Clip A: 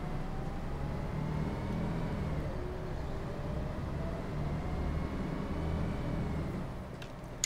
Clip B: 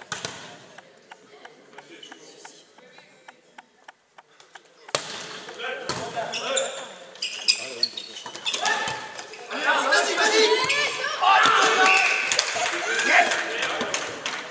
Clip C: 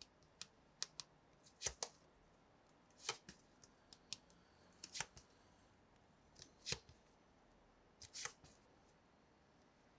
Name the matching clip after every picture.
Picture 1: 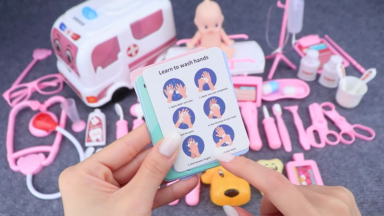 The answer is C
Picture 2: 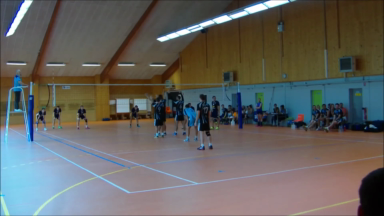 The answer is B